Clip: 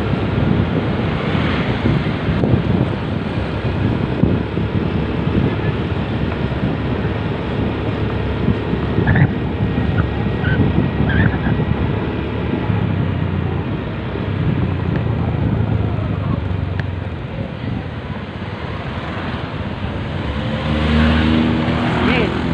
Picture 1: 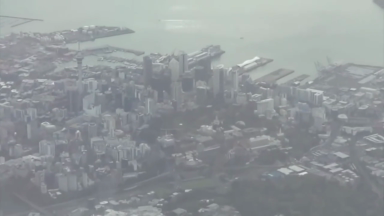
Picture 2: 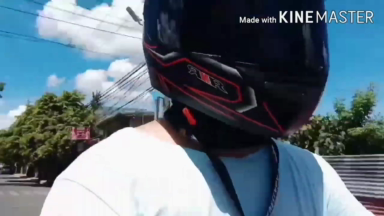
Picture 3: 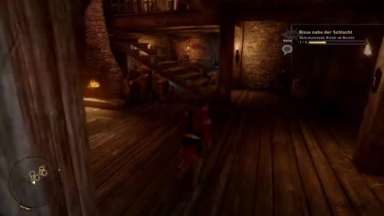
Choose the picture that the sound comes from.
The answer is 2